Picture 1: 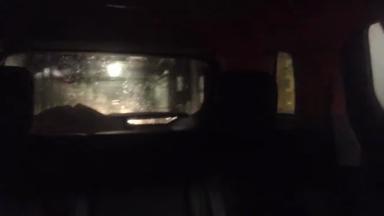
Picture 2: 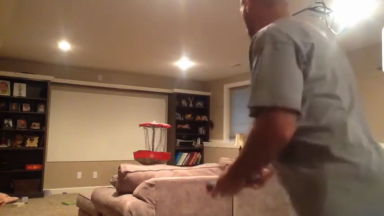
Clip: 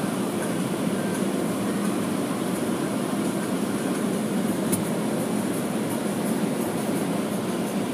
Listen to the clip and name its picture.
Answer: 1